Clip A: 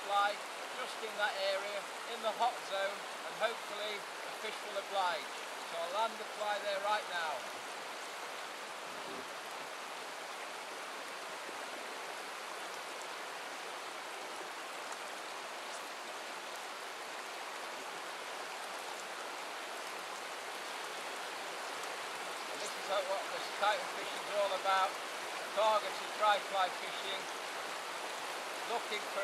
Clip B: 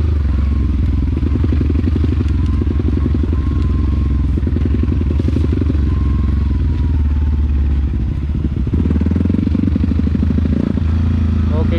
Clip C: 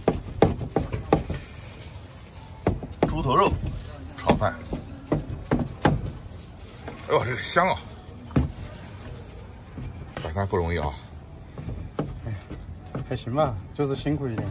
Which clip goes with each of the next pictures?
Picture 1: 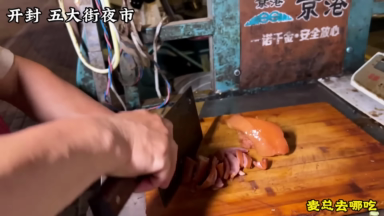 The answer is C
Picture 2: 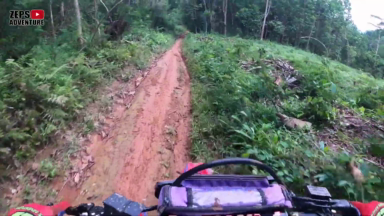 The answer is B